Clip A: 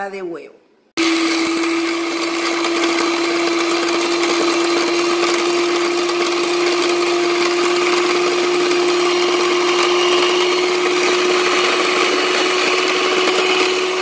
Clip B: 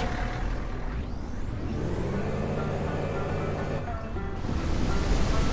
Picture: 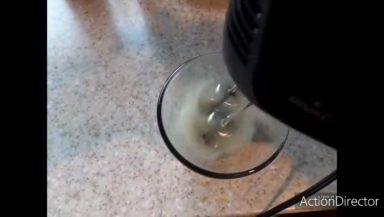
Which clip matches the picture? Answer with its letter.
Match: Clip A